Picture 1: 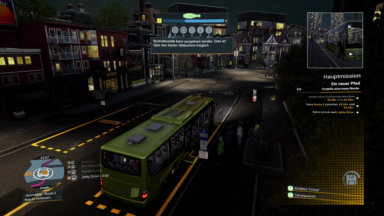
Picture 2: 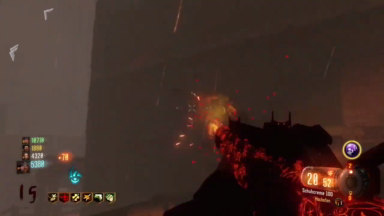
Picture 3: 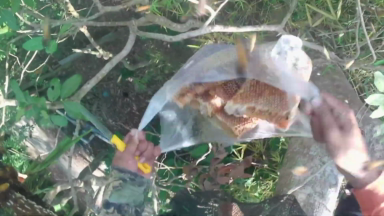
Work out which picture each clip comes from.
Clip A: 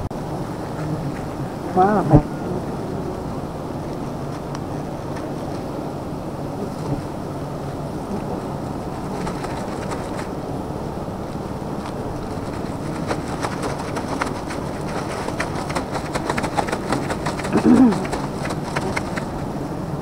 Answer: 3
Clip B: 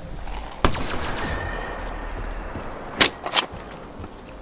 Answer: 2